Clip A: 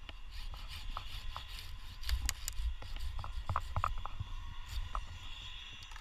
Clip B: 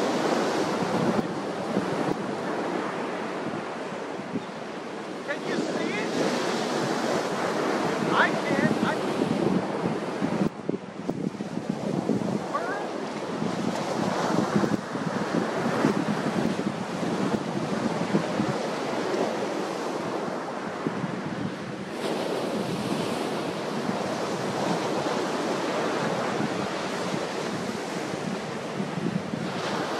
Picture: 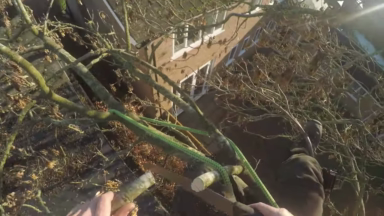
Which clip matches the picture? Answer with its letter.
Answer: A